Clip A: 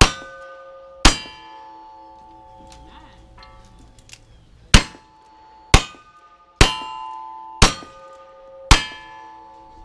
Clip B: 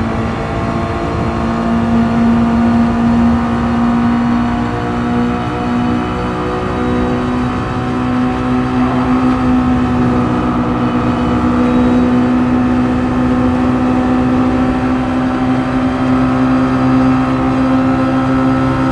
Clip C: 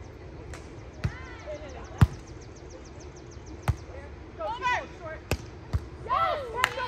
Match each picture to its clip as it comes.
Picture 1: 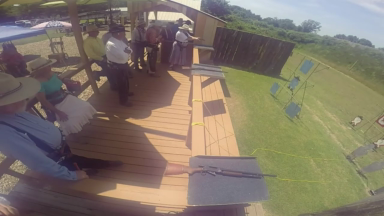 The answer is A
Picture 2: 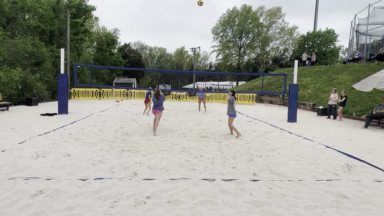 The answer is C